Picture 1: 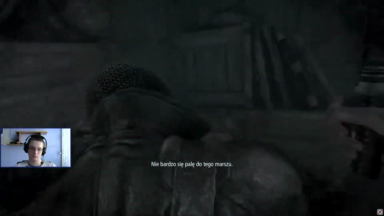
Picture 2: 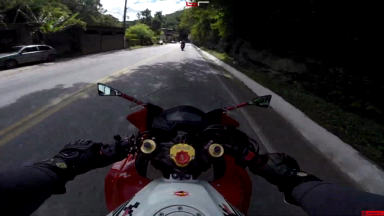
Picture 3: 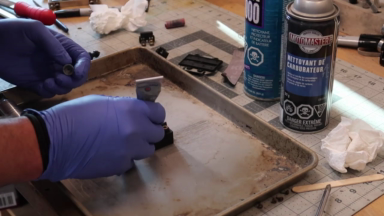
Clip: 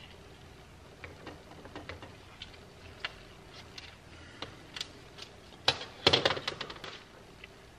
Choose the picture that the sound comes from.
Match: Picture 3